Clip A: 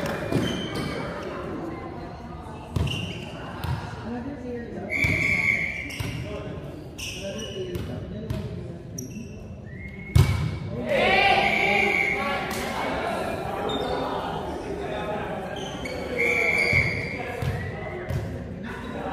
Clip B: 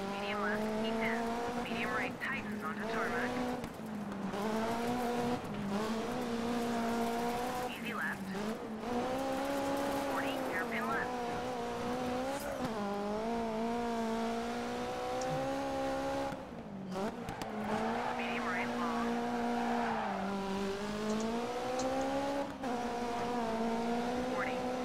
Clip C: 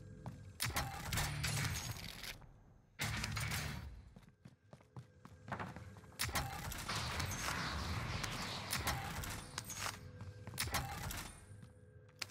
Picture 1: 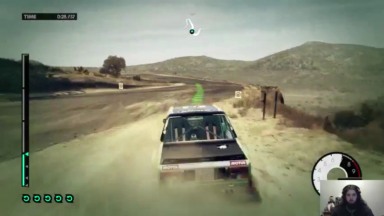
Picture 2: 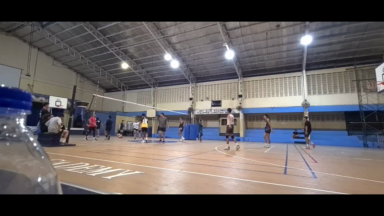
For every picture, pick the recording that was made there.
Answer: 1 B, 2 A